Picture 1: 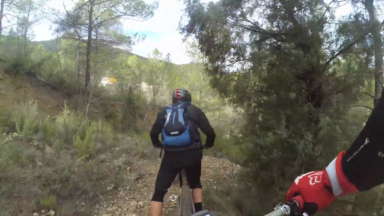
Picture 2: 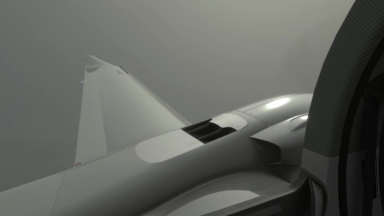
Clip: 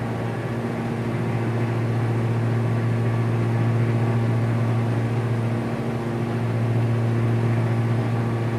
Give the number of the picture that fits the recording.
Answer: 2